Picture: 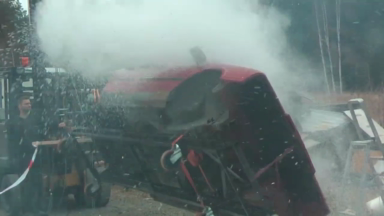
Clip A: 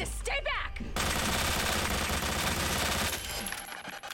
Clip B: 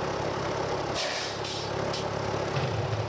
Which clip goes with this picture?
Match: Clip B